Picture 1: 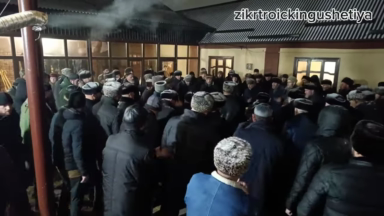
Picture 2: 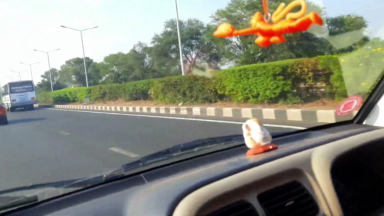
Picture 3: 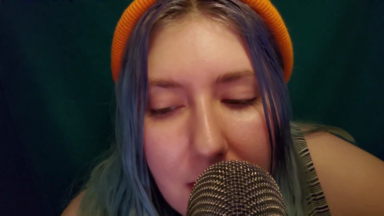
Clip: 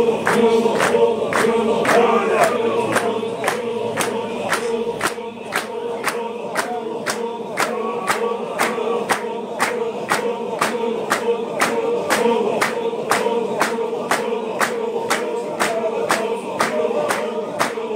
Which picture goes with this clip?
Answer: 1